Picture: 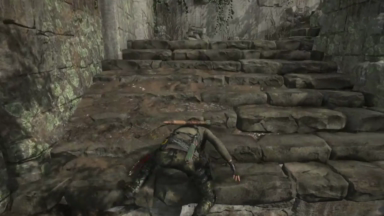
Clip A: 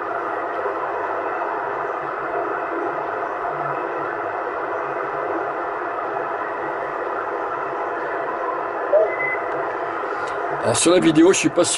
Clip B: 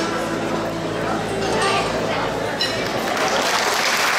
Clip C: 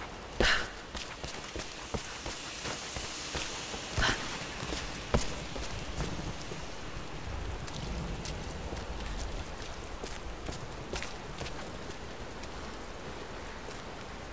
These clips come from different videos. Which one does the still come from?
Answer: C